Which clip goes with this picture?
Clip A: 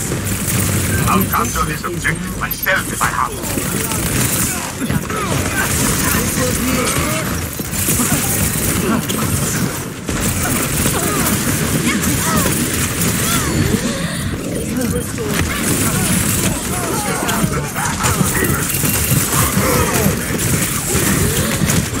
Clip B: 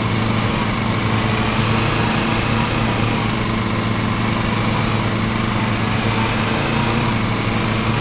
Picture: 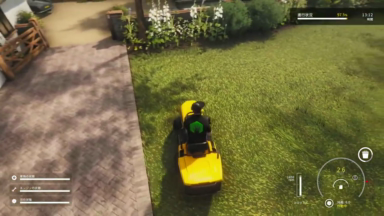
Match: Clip B